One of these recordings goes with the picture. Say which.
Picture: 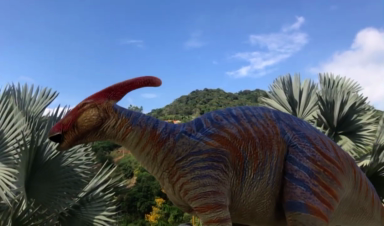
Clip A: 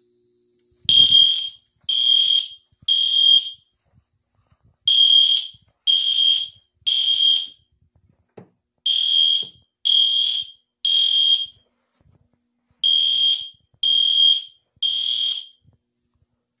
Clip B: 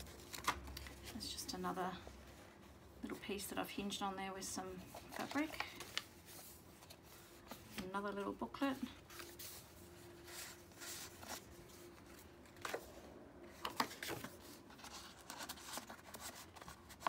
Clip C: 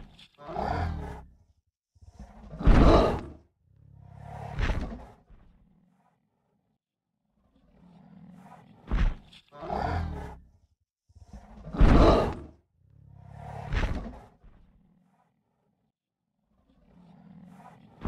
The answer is C